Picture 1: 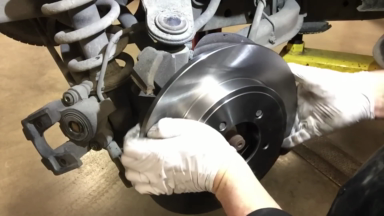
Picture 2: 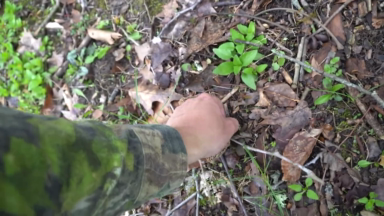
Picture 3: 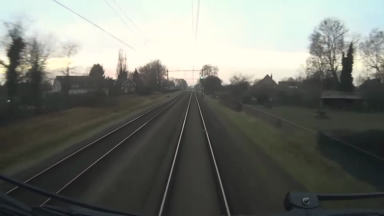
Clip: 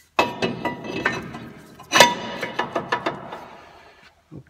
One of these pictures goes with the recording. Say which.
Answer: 1